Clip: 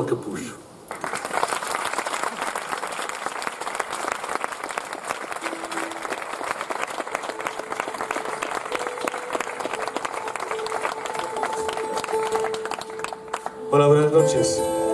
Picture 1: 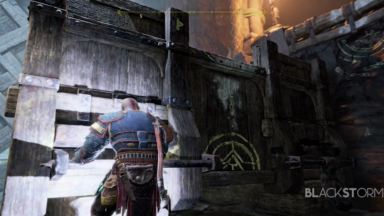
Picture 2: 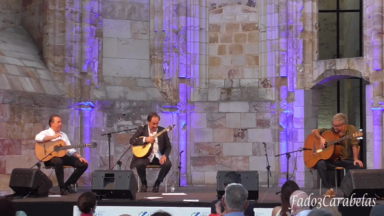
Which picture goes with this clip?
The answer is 2